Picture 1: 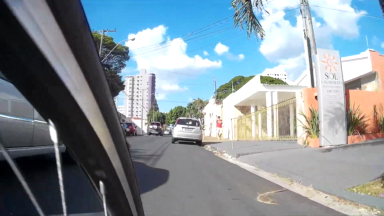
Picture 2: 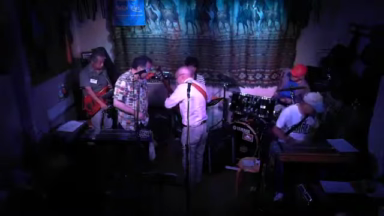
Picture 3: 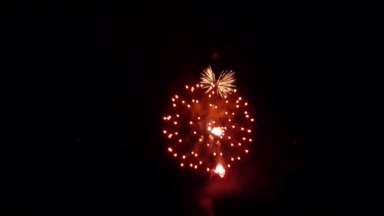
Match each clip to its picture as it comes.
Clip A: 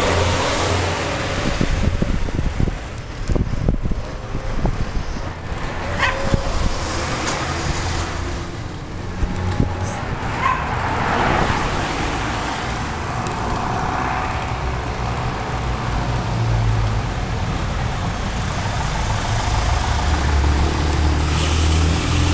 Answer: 1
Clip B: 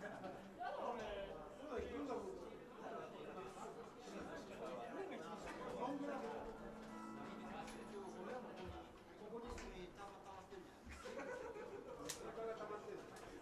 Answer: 2